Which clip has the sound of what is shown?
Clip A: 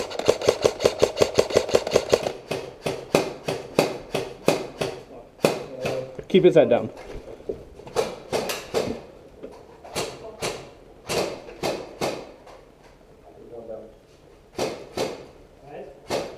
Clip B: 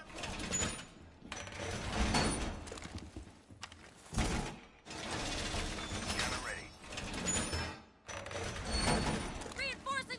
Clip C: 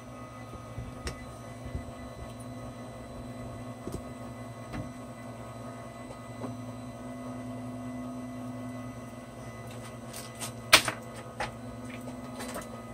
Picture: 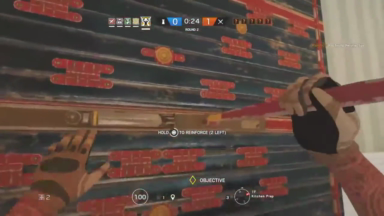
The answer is B